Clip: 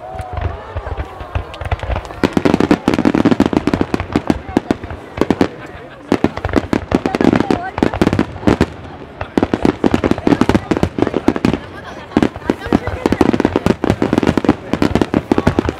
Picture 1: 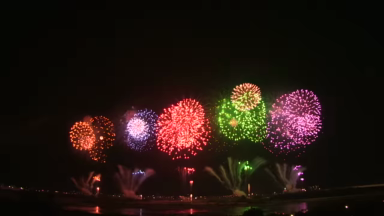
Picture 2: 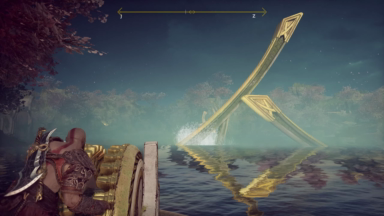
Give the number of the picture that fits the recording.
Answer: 1